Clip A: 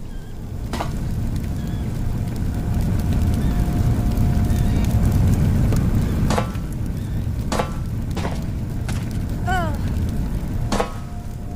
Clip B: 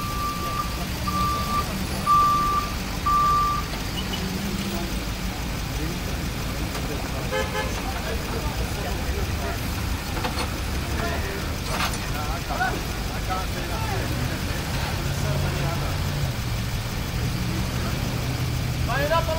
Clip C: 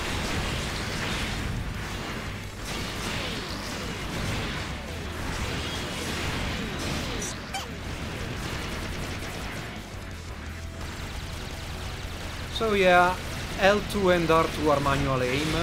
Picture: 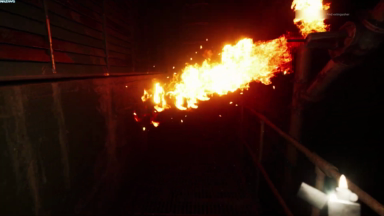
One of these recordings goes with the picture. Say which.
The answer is A